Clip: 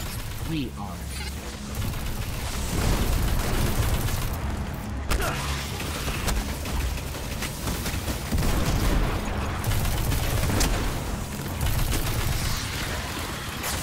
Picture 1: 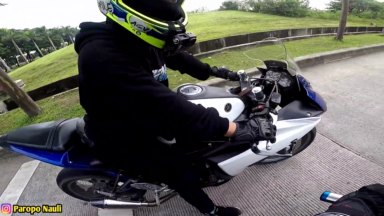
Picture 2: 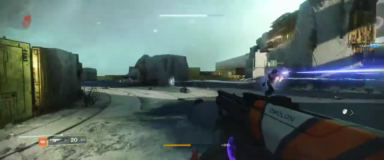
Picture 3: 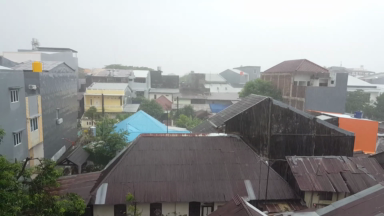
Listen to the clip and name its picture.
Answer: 2